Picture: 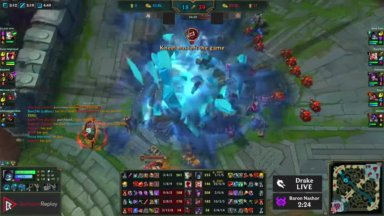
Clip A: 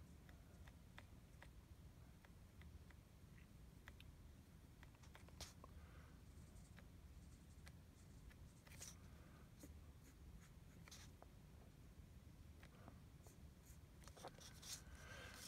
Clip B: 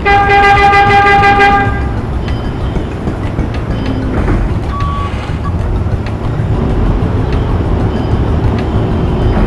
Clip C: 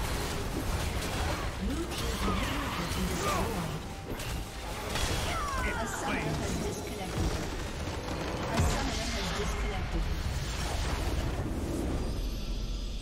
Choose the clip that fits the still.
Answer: C